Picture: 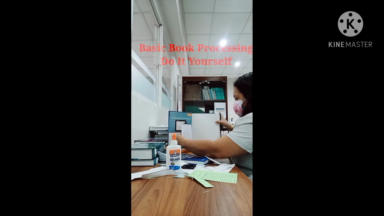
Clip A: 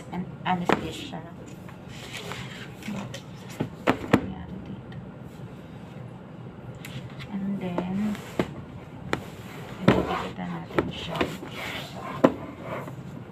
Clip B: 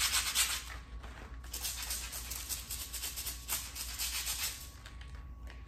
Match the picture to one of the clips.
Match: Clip A